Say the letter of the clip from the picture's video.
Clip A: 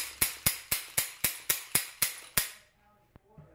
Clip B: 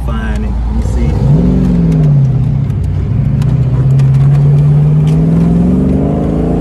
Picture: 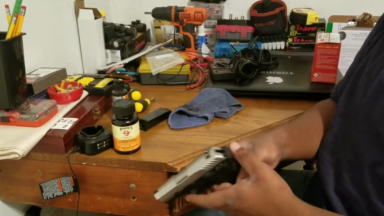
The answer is A